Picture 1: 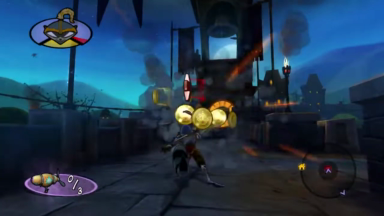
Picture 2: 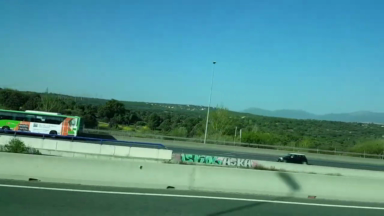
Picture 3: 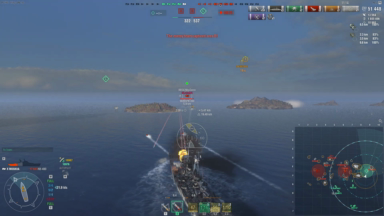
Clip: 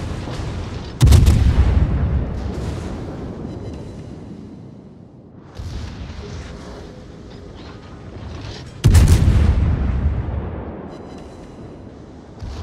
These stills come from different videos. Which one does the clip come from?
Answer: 3